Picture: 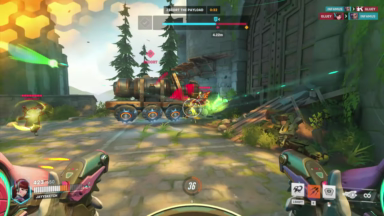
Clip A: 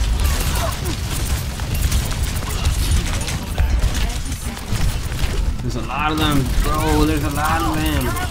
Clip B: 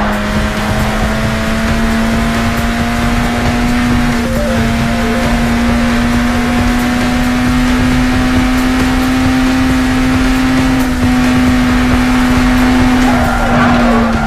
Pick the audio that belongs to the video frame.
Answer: A